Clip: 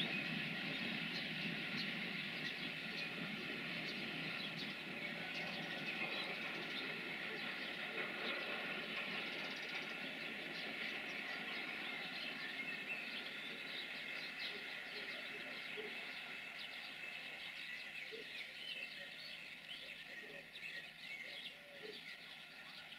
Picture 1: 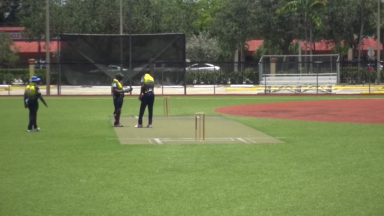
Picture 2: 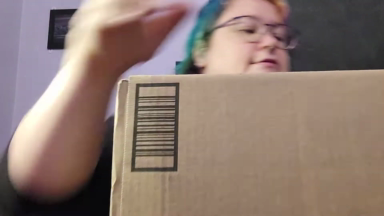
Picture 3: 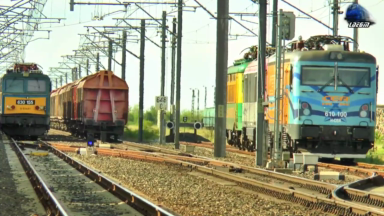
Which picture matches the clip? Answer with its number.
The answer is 3